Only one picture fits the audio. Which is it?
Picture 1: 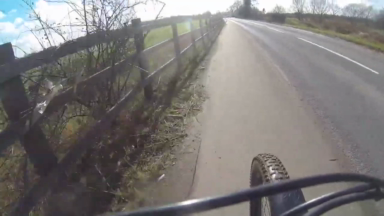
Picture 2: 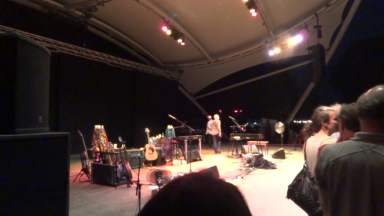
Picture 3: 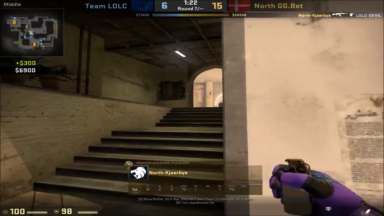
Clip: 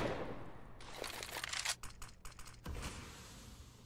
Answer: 3